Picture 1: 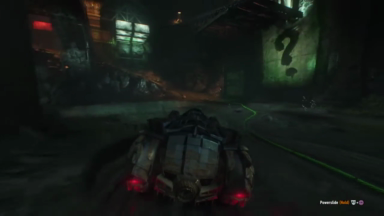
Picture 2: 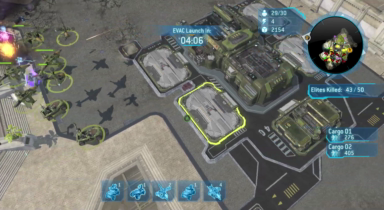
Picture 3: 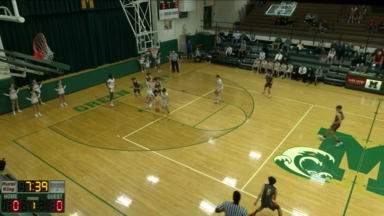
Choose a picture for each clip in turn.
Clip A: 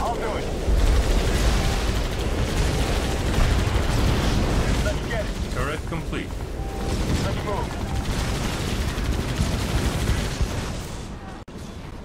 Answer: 2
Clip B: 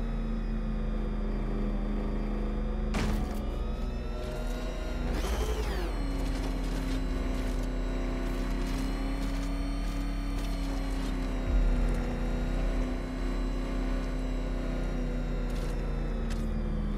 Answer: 1